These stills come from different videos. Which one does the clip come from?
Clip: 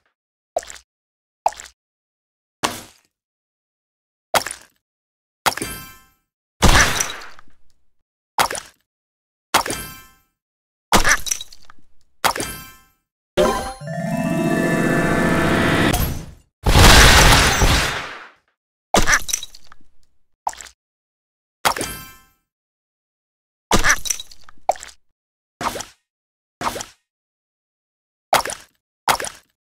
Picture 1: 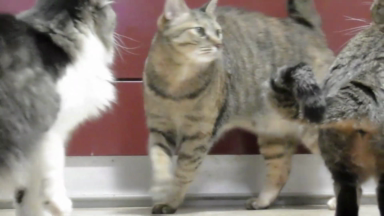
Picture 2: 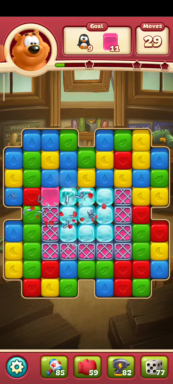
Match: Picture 2